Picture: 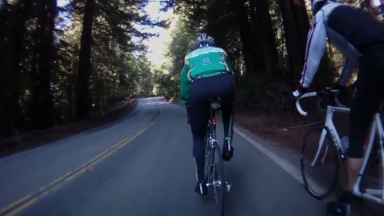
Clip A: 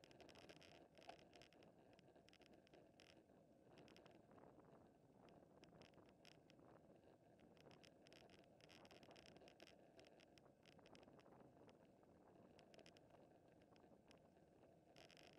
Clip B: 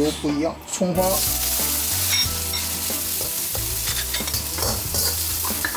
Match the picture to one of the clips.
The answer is A